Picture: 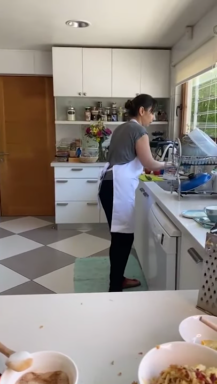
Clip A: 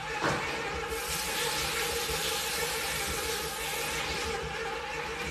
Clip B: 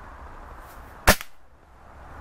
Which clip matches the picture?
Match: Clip A